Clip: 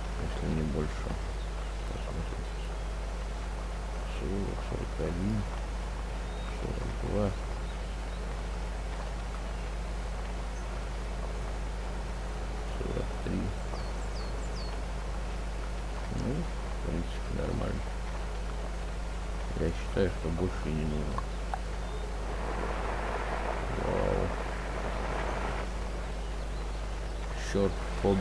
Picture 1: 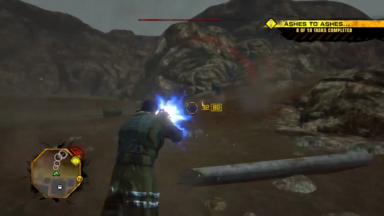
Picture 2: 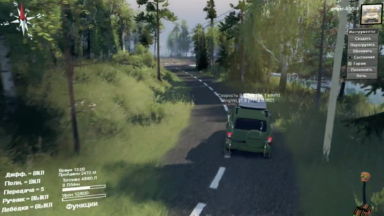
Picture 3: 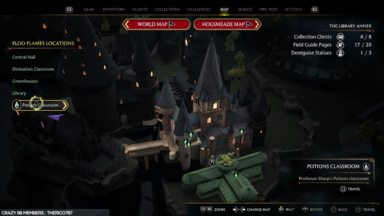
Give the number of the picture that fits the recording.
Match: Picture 2